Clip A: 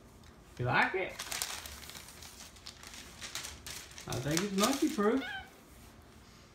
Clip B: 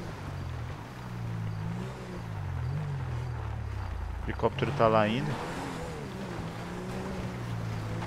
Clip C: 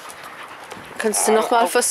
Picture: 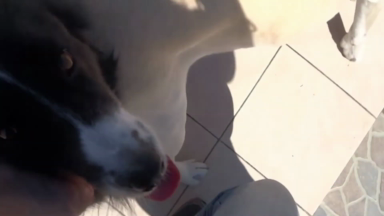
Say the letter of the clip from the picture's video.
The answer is C